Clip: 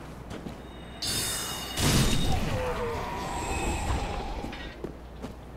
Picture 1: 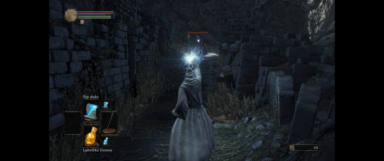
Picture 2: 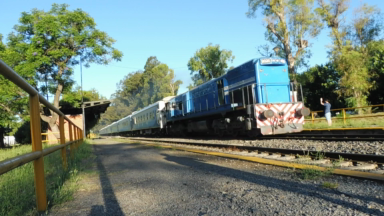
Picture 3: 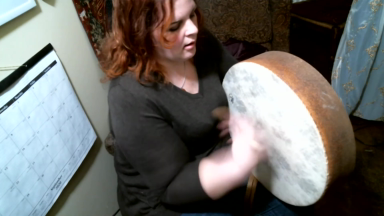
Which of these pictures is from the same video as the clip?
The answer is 1